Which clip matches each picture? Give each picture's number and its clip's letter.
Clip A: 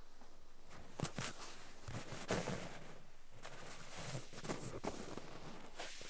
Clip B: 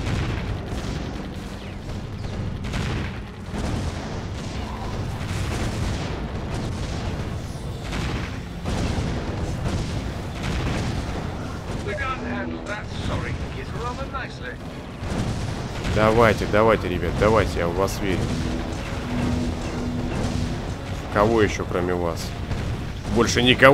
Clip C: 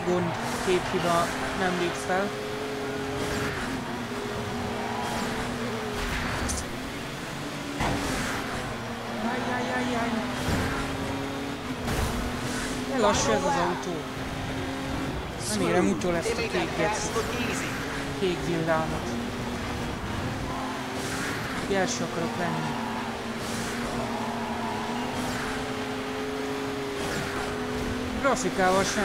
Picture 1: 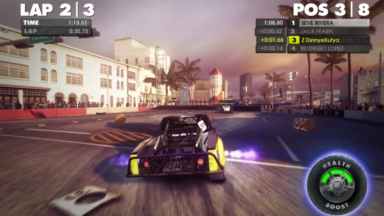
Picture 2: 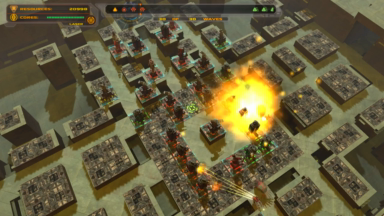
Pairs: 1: C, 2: B